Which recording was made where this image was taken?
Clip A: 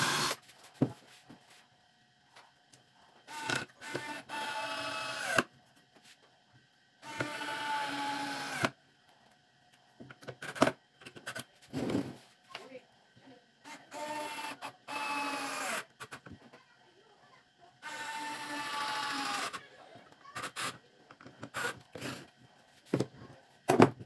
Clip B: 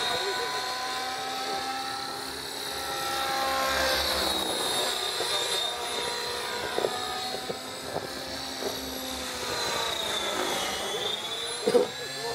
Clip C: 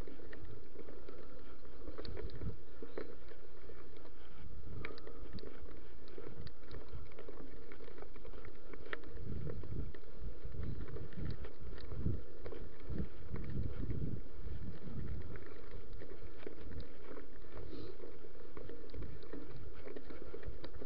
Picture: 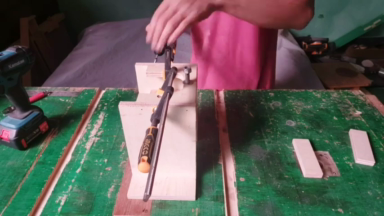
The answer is A